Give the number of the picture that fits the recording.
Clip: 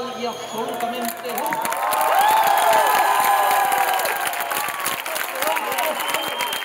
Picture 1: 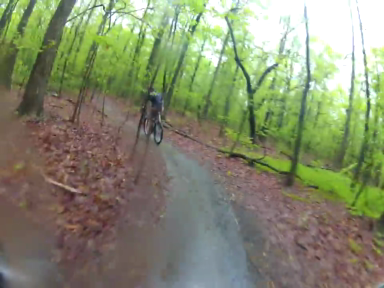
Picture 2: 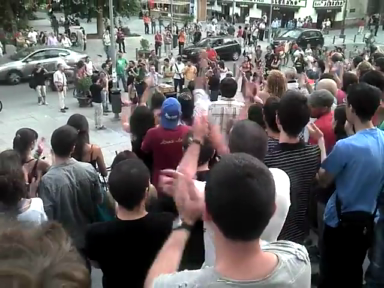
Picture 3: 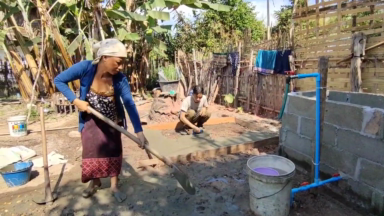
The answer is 2